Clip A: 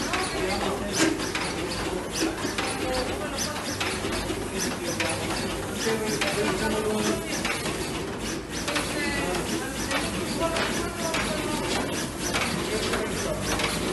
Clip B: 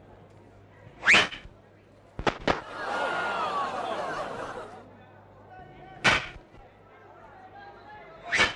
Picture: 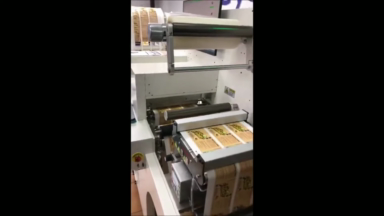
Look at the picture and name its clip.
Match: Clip A